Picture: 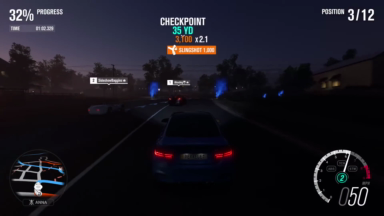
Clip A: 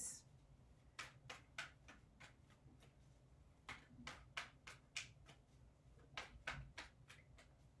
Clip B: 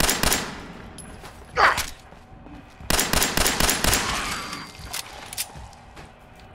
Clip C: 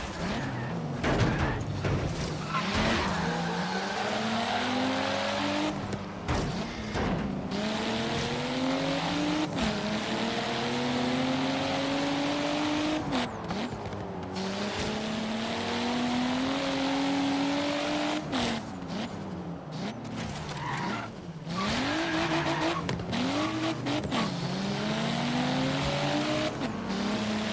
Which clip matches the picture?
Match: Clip C